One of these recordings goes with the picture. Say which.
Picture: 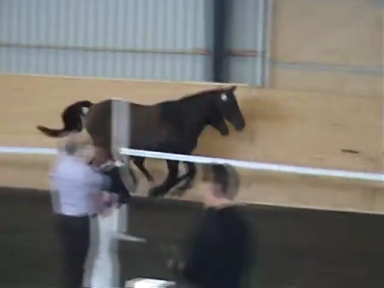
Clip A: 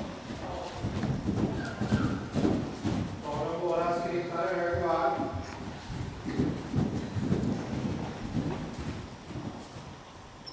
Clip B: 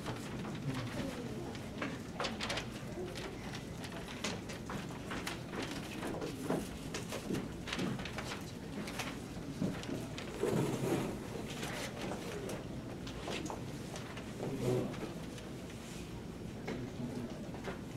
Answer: A